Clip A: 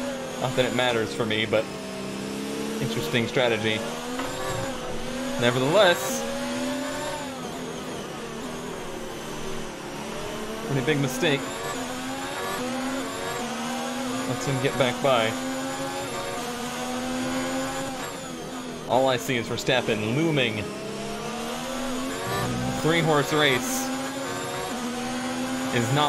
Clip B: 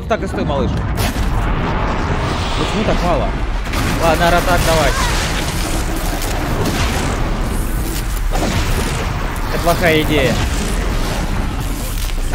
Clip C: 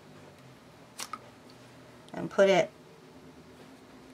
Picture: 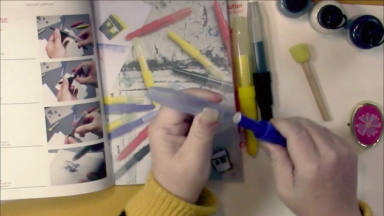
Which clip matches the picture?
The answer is C